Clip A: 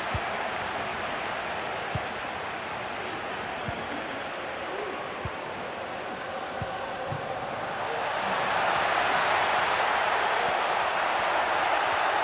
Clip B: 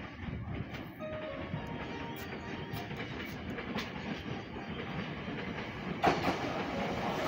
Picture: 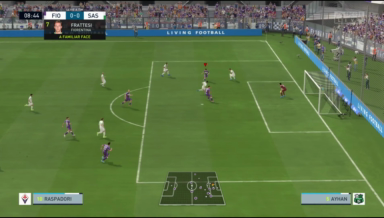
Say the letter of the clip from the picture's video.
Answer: A